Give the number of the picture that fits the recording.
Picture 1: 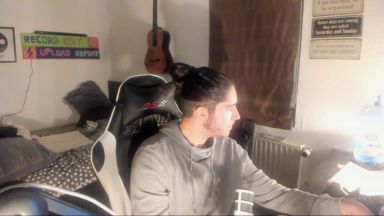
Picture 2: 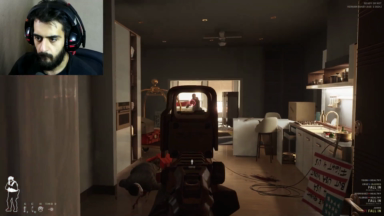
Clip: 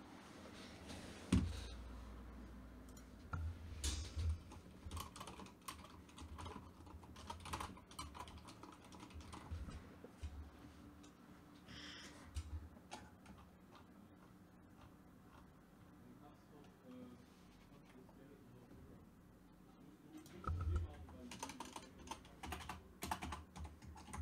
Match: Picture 1